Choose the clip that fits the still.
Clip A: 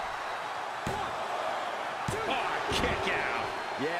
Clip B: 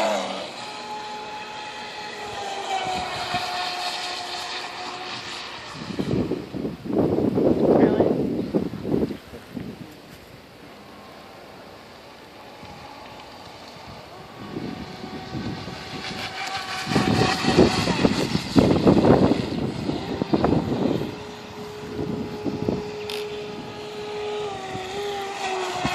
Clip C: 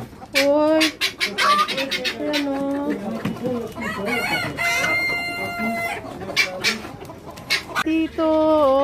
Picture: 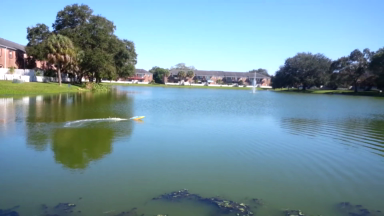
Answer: B